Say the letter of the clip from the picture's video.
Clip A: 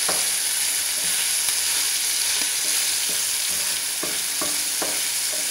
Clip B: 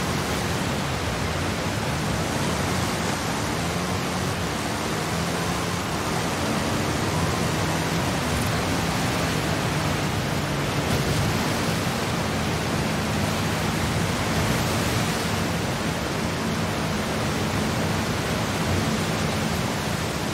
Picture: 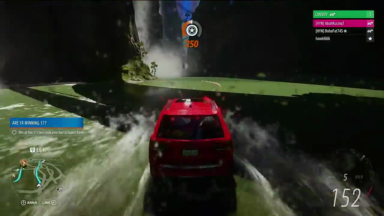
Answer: B